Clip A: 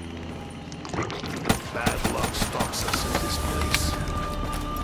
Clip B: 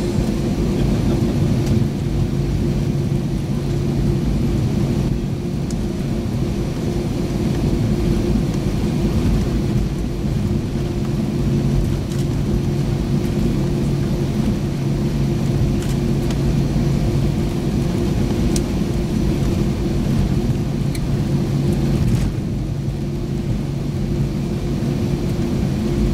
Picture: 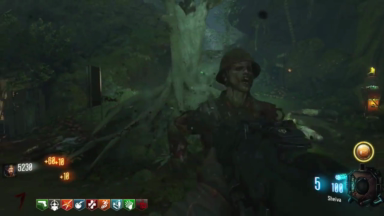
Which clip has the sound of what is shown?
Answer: A